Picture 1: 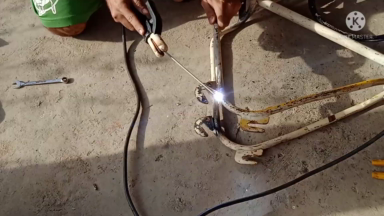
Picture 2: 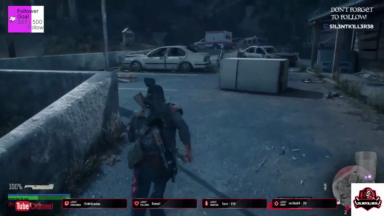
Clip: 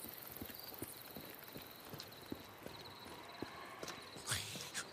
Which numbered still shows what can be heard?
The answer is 2